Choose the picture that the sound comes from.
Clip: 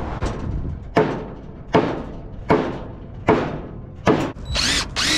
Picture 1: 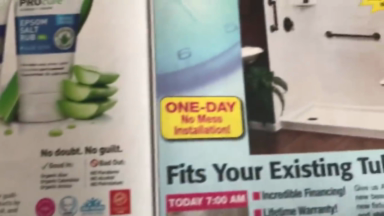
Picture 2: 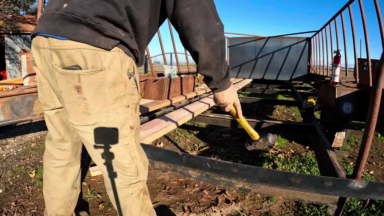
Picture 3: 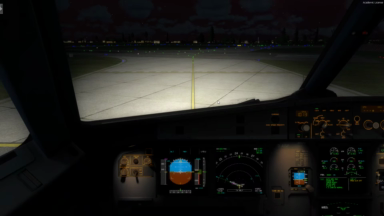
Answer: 2